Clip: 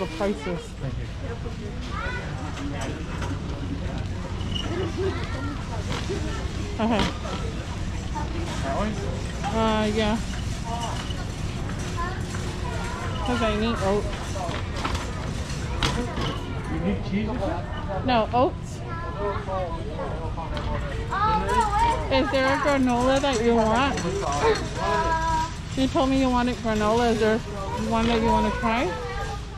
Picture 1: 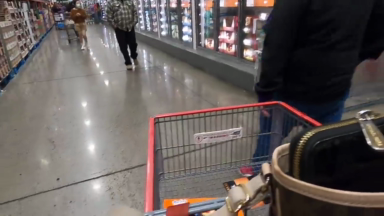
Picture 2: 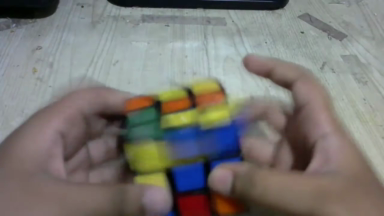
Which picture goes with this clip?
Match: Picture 1